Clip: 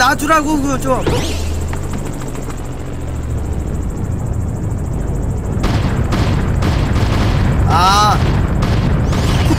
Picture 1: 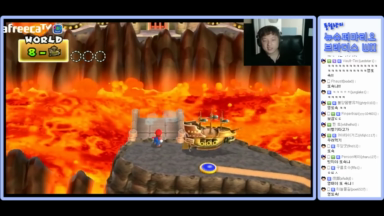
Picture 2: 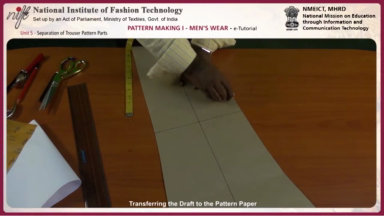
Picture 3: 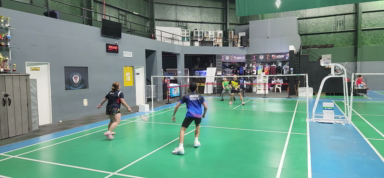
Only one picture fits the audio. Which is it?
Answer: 1